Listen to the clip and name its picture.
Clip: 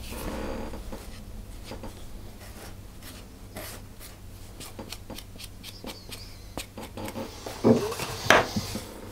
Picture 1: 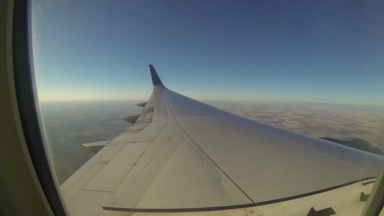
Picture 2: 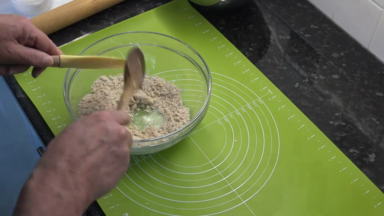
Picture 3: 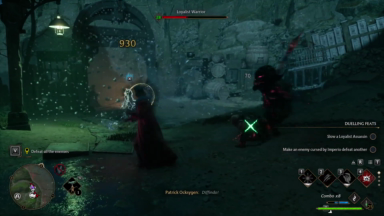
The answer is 2